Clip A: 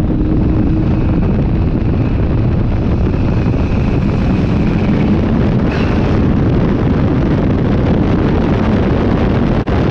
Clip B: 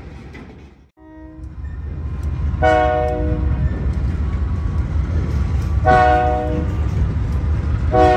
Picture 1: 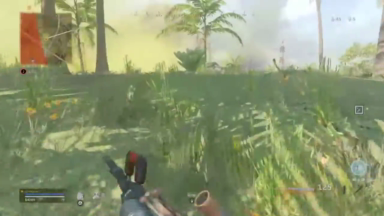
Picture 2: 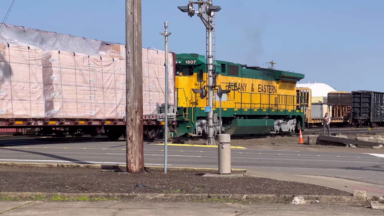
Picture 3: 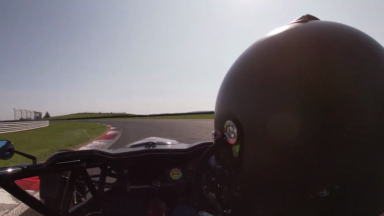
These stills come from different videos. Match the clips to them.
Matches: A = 3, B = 2